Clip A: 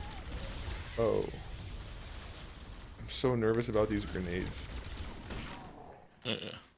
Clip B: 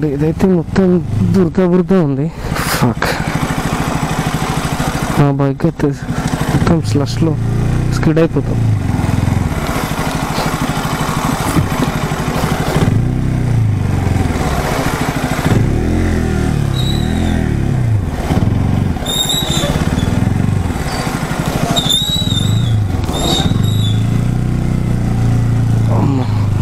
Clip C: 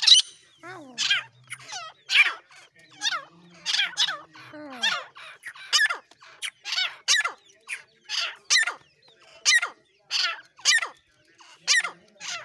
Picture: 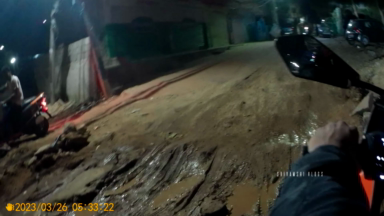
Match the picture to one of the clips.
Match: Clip B